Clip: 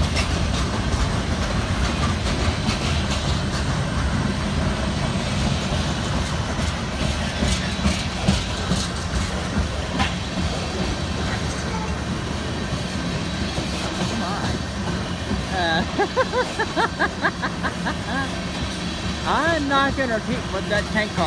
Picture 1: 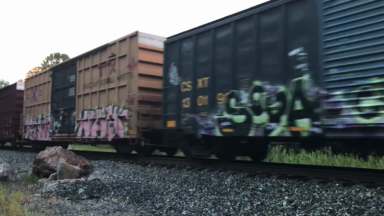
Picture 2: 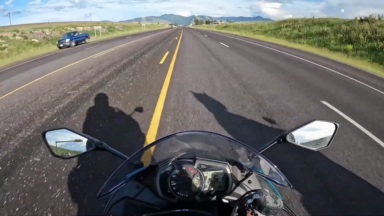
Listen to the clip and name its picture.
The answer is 1